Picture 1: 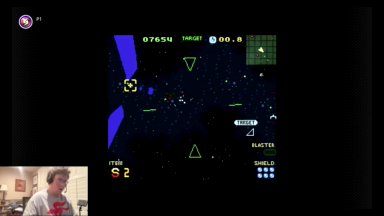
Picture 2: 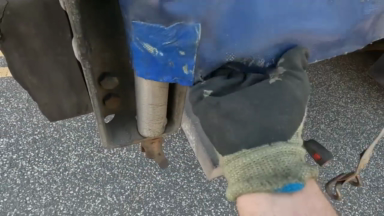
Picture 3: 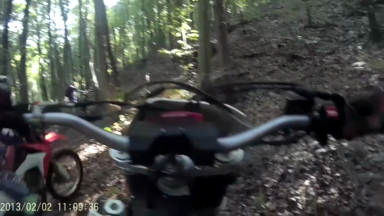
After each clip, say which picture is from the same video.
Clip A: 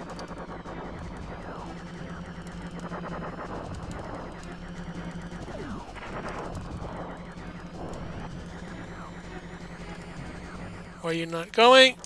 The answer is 1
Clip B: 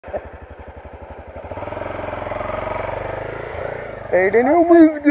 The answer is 3